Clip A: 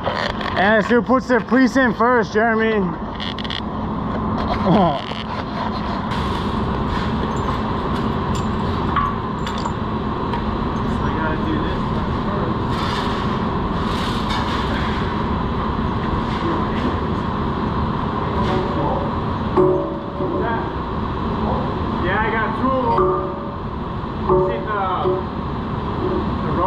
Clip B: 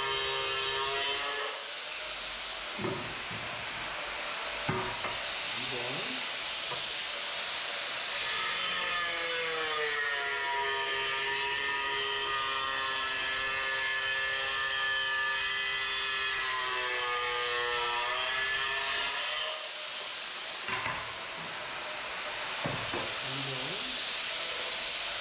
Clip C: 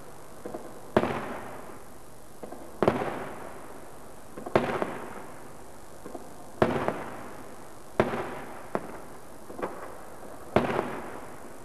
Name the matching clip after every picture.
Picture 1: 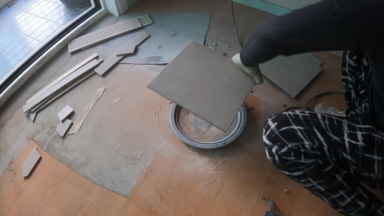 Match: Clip B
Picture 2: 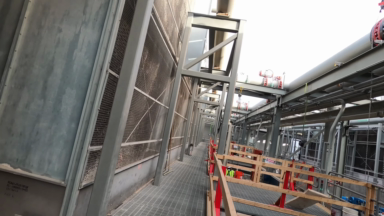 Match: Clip A